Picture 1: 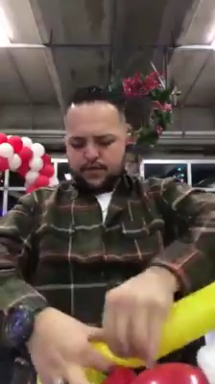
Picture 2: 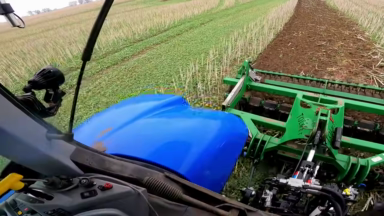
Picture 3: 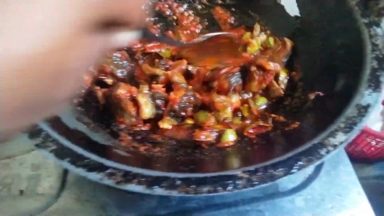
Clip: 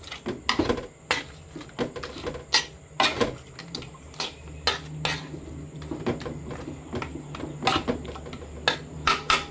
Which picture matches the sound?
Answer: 3